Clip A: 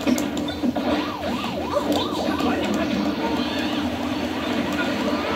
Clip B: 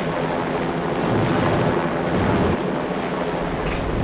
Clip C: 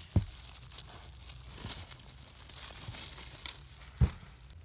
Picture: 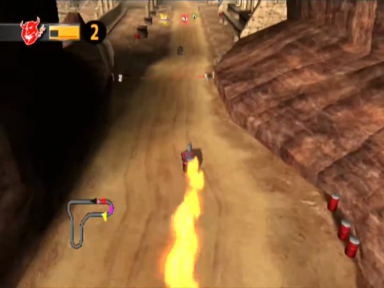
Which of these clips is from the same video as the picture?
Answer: B